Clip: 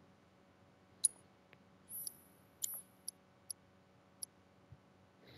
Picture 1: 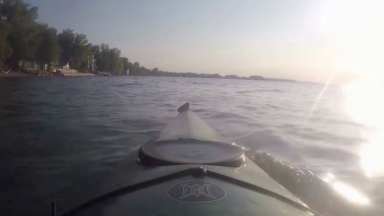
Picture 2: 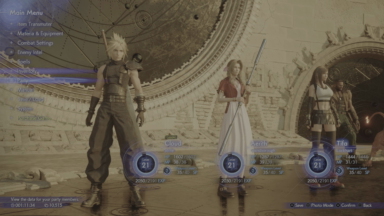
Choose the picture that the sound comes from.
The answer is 2